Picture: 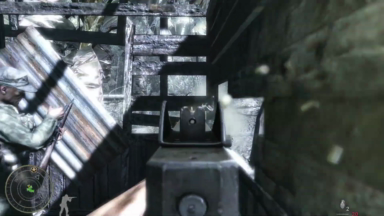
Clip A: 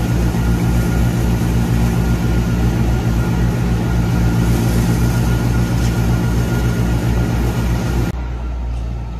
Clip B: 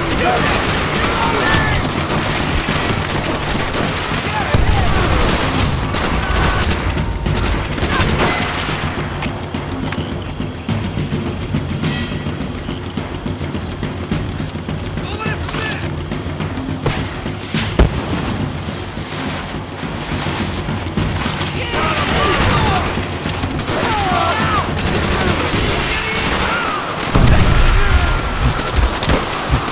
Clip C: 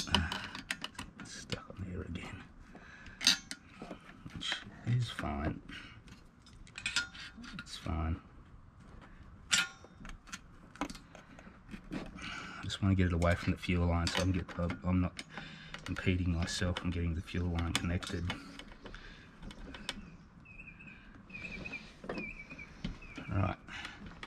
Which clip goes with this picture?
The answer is B